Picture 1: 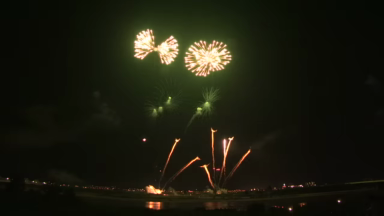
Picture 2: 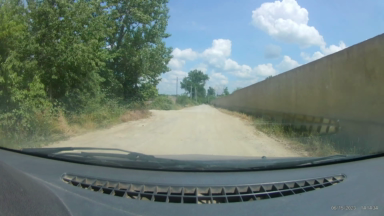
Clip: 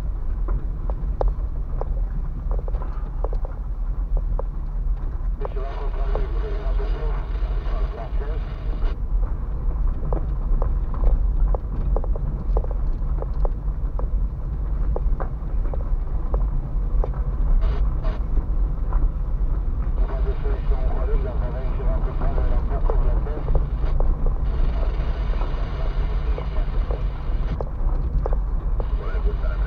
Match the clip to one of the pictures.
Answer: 2